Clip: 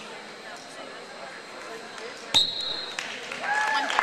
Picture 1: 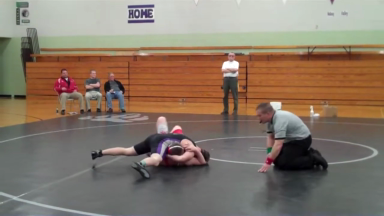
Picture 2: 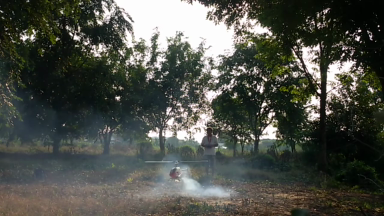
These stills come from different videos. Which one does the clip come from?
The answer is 1